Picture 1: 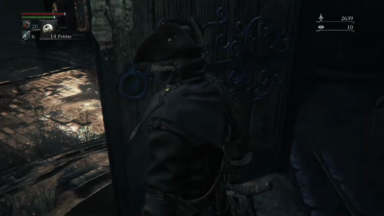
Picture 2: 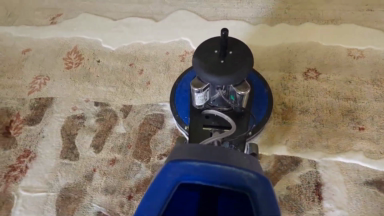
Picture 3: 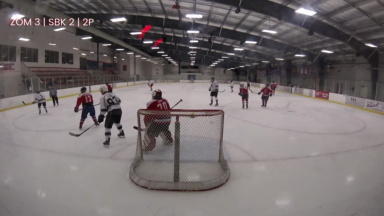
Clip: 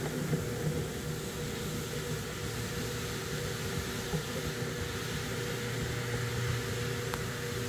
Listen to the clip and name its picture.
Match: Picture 2